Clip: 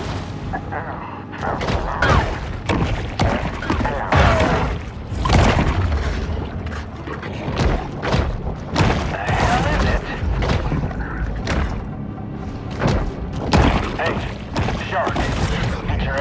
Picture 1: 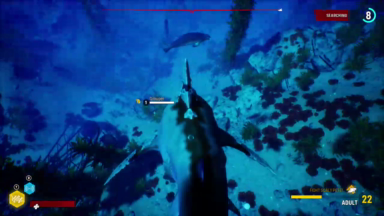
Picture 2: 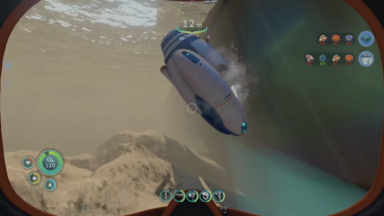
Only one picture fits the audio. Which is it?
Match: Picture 1